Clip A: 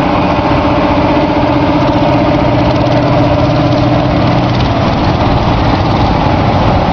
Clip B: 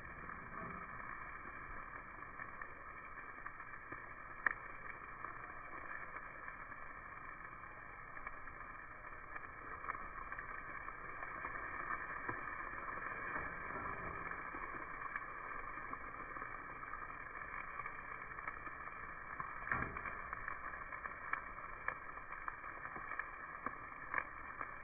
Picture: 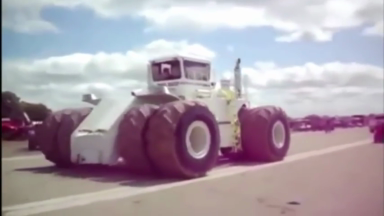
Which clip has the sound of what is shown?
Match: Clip A